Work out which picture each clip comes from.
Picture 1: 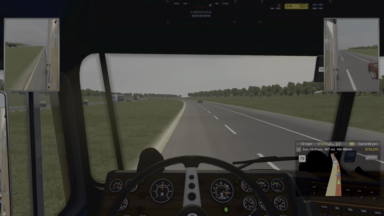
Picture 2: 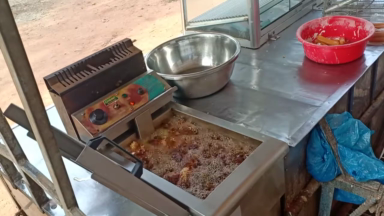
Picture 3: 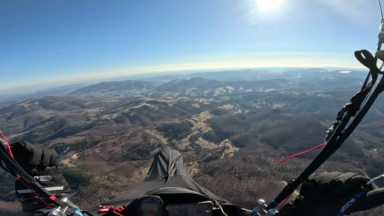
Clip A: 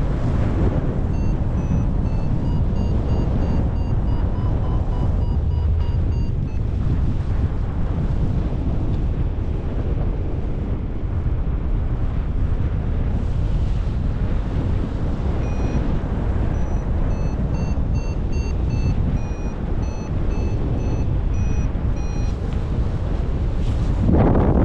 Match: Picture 3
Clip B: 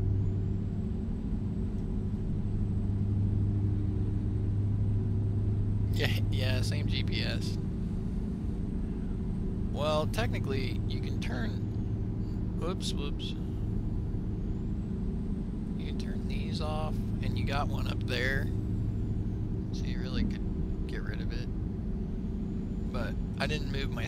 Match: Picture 1